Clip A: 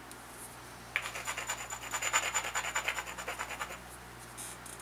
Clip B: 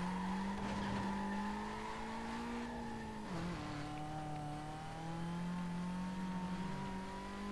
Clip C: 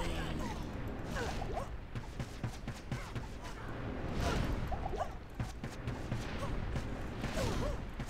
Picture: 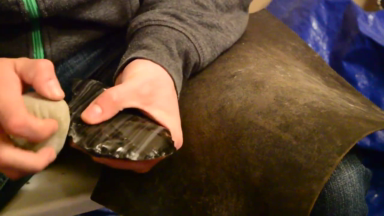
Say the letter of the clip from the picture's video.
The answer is A